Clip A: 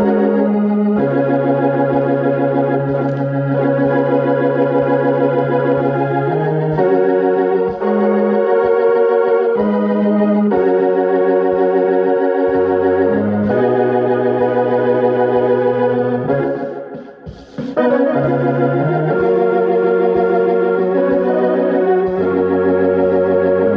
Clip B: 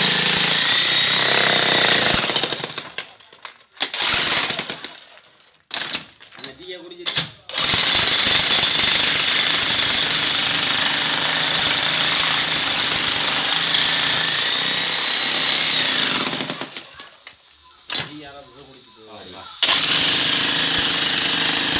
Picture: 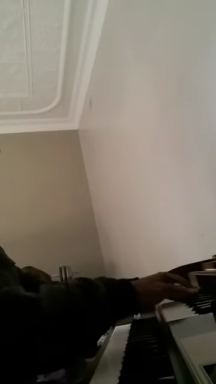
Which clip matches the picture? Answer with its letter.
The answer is A